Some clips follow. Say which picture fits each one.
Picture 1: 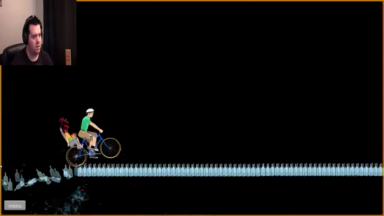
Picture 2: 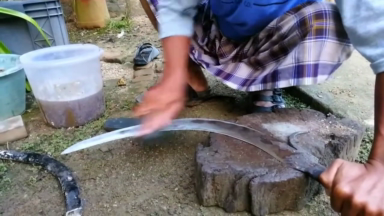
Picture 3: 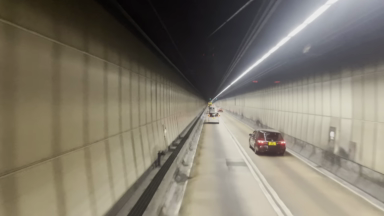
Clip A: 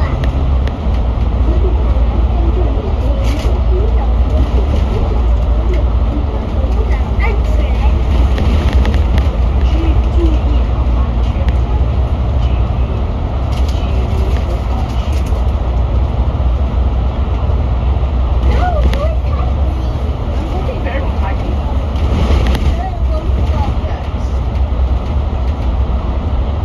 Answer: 3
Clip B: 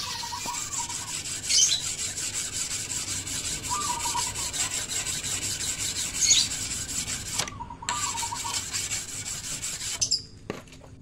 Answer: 2